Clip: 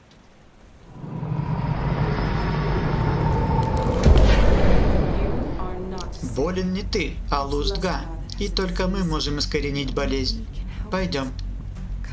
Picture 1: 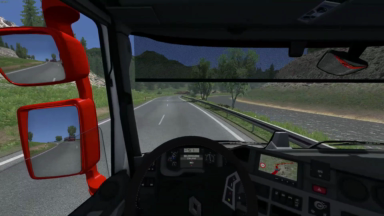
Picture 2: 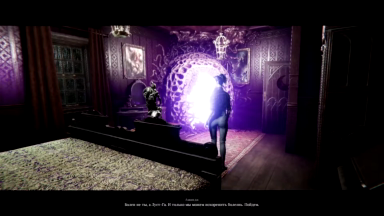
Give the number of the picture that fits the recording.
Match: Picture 2